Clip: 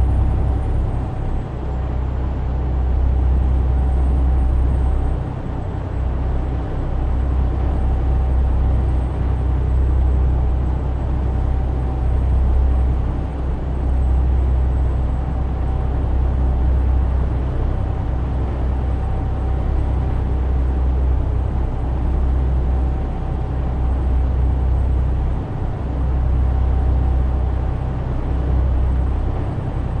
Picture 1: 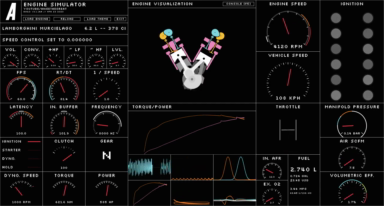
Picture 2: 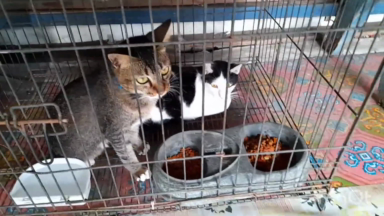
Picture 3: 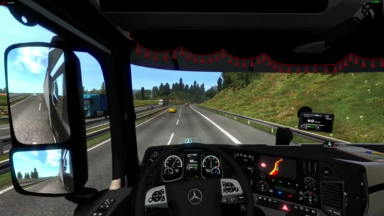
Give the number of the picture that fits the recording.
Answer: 3